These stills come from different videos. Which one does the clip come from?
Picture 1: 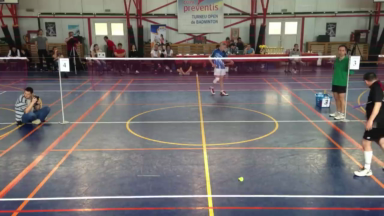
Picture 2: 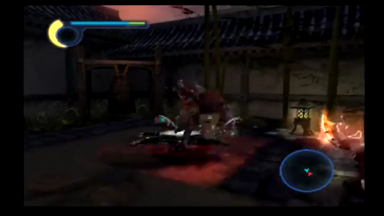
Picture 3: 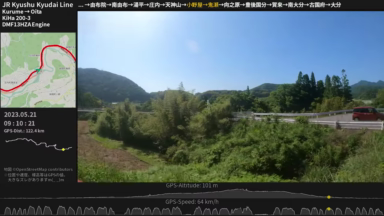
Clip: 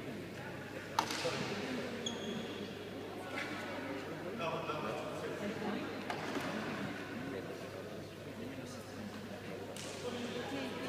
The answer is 1